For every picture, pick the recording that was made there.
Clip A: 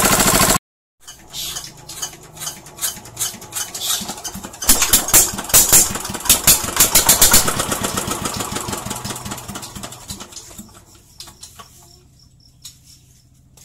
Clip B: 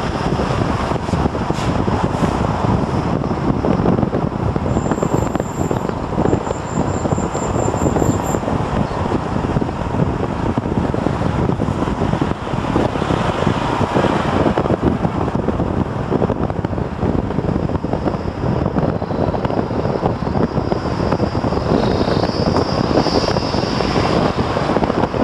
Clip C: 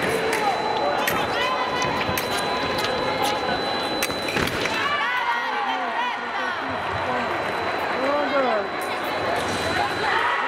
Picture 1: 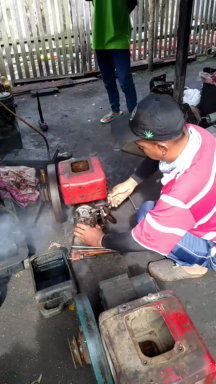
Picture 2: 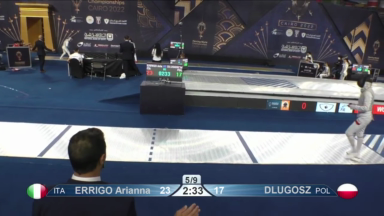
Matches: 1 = A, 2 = C